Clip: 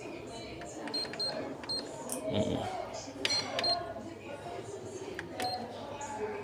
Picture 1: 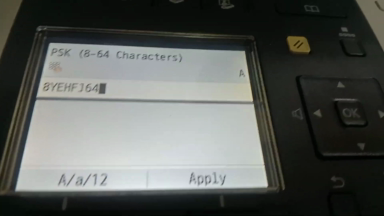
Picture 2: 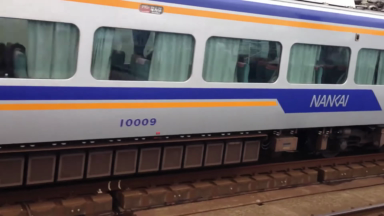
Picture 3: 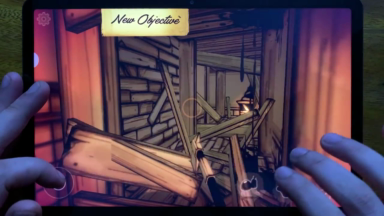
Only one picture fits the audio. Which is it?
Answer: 1